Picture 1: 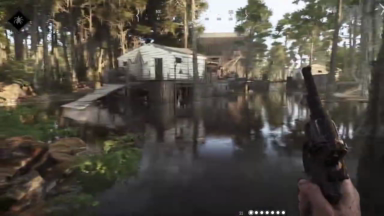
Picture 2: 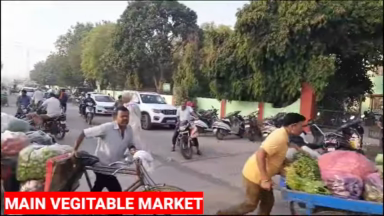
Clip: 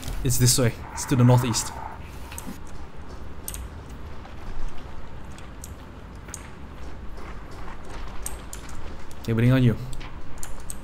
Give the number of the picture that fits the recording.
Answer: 1